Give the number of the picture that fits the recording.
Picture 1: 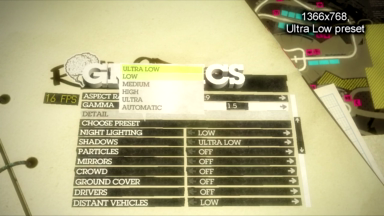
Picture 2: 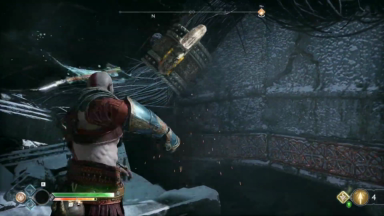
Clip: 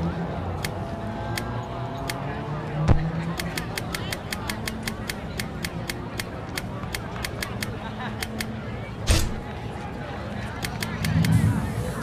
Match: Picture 1